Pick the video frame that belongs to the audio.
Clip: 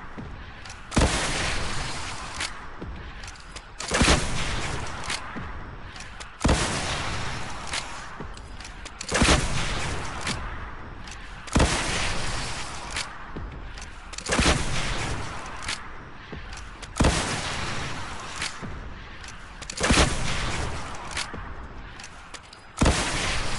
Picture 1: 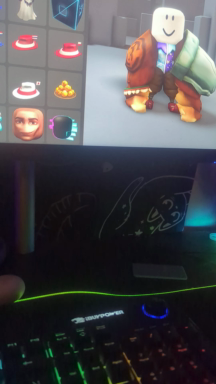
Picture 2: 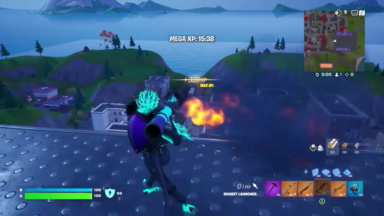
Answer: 2